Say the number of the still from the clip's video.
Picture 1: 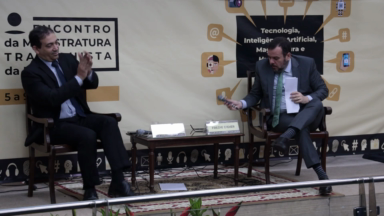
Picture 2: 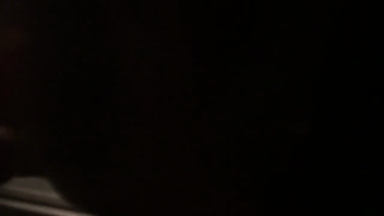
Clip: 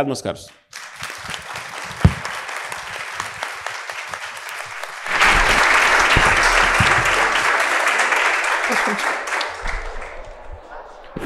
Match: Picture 1